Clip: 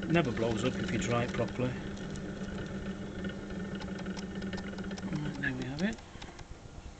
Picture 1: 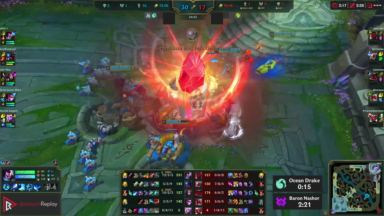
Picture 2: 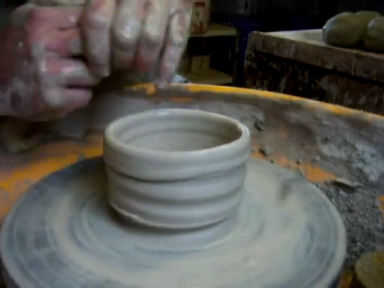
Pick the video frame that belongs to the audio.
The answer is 2